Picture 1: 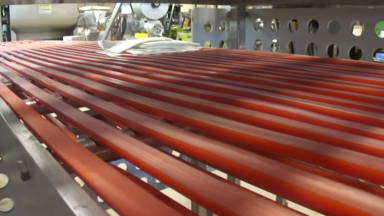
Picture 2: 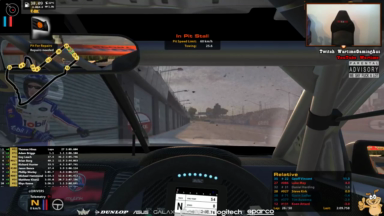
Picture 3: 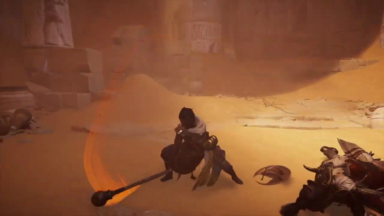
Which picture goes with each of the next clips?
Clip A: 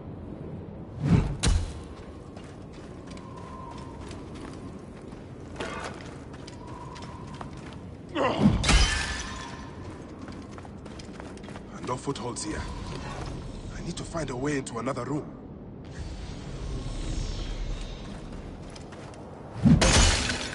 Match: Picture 3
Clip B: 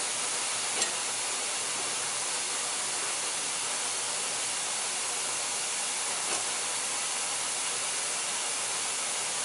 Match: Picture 1